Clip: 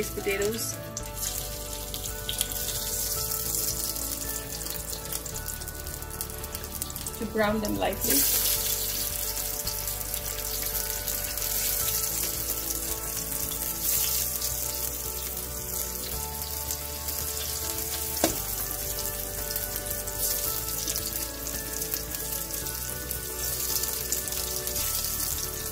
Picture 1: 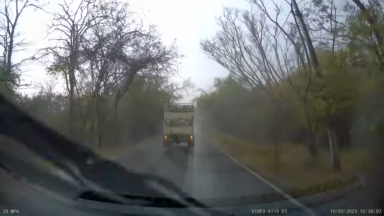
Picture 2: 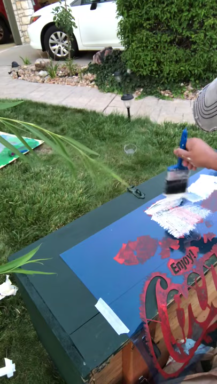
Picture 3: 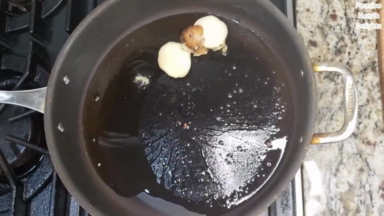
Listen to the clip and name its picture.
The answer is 3